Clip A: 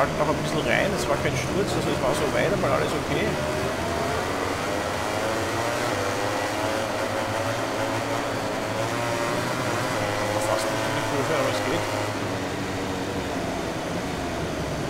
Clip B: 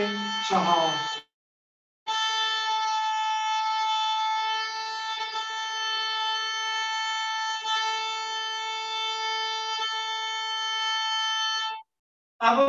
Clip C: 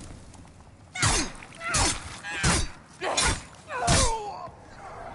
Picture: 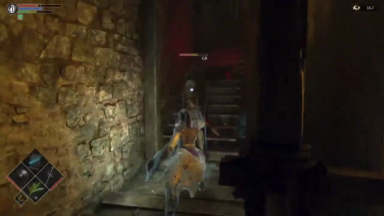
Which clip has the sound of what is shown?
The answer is C